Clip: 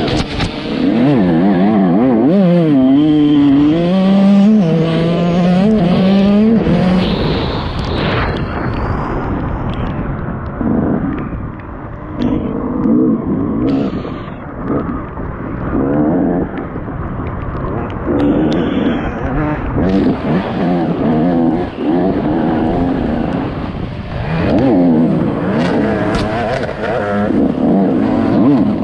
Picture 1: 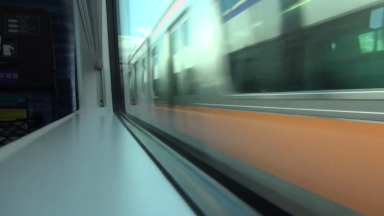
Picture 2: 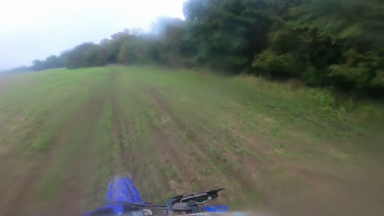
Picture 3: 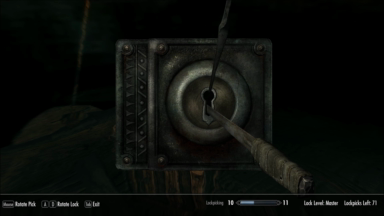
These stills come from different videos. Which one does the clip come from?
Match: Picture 2